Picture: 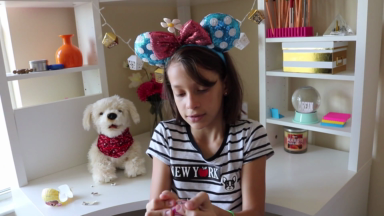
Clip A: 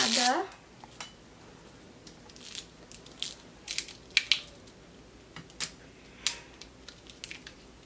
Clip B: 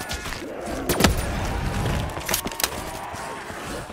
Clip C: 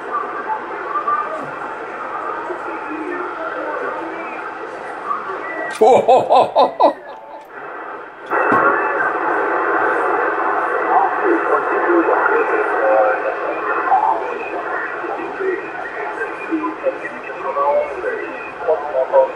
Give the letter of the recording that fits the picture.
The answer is A